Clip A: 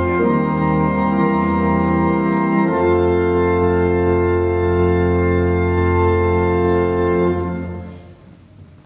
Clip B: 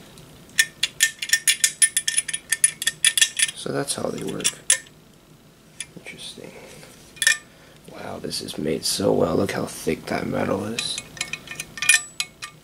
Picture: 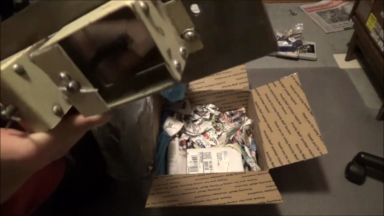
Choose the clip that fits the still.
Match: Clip B